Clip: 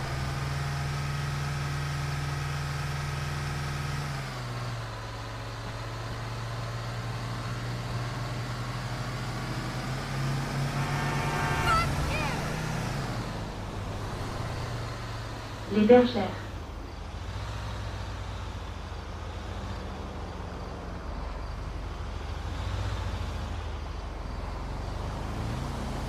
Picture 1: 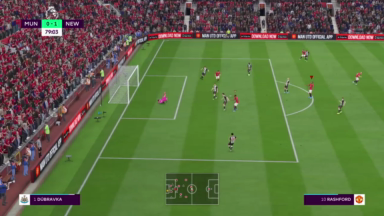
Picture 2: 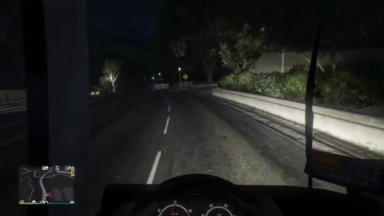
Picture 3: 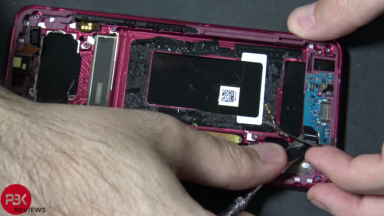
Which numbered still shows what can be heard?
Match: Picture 2